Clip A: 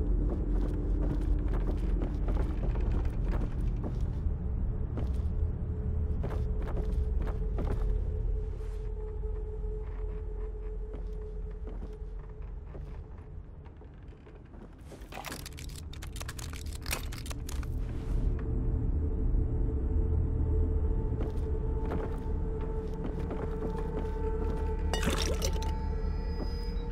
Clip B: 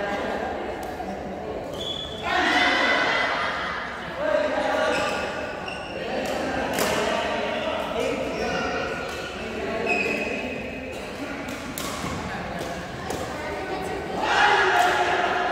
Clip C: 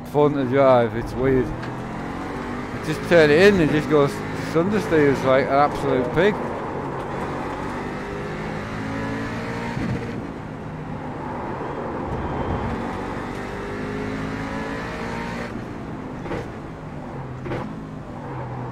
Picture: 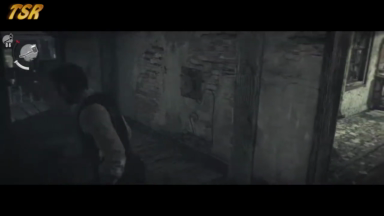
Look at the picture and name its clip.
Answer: A